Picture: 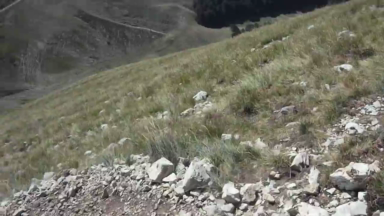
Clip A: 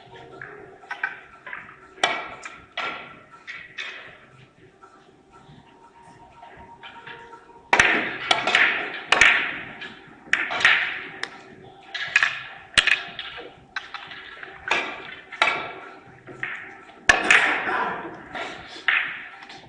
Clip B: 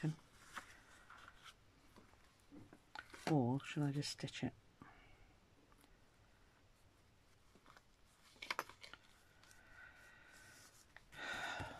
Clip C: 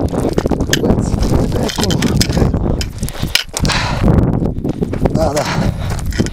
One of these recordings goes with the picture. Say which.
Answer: C